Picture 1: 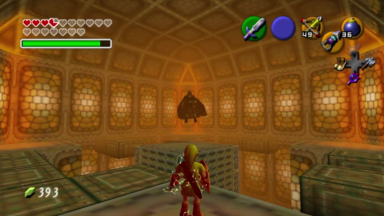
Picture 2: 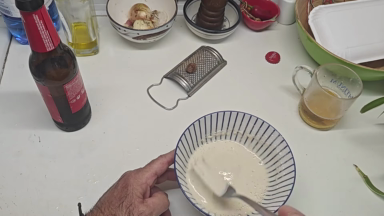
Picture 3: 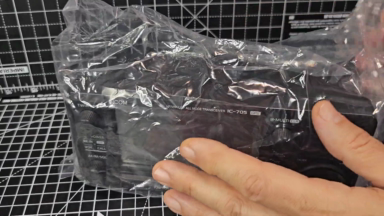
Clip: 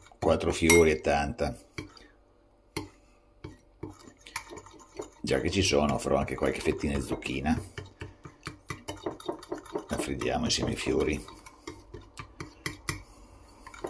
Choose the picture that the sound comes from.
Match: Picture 2